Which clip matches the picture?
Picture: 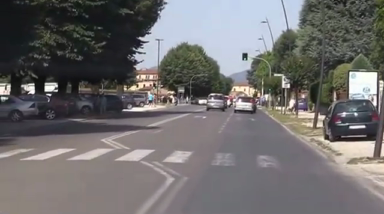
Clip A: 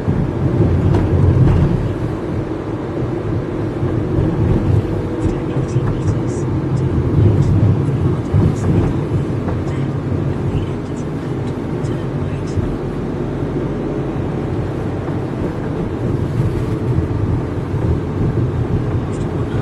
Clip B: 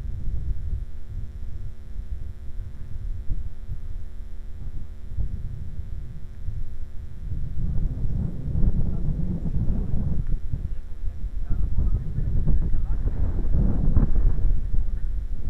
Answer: A